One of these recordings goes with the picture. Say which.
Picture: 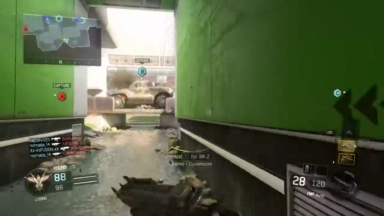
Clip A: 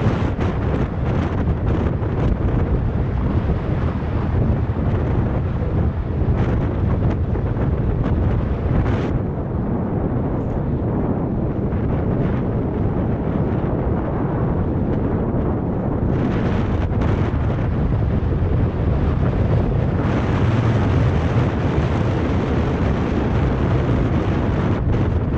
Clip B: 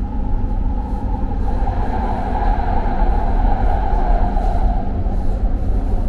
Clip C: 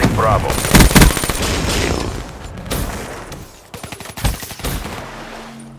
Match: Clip C